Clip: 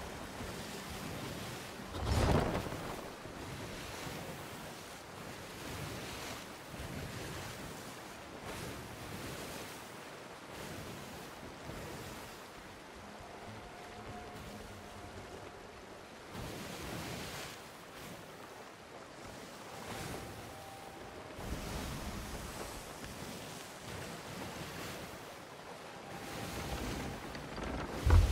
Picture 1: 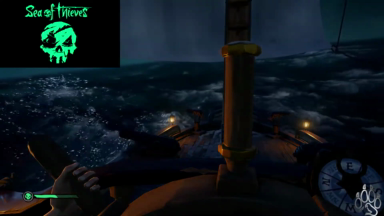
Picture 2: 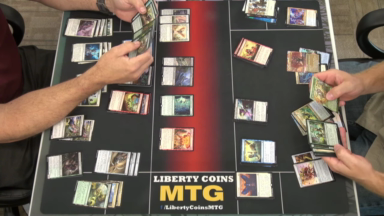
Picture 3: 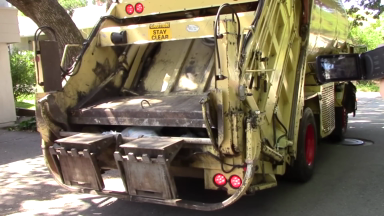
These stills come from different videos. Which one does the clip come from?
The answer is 1